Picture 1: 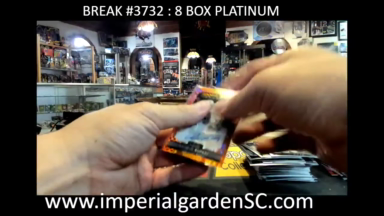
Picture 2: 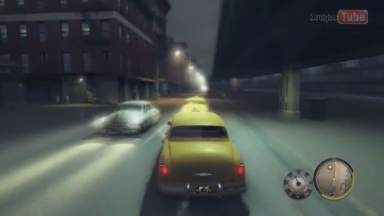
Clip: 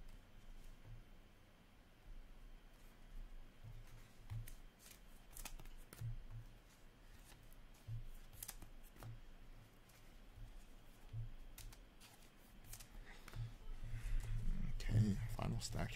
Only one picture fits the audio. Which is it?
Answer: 1